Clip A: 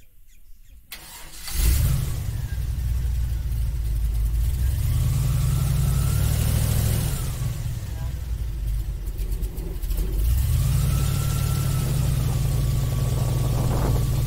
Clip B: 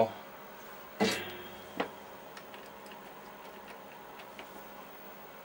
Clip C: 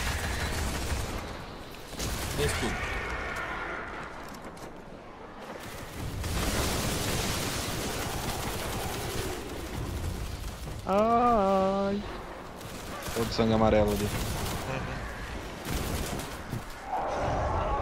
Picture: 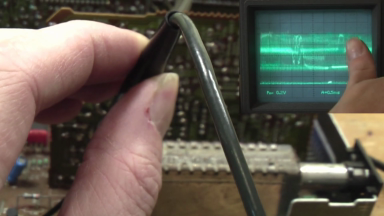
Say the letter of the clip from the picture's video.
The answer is B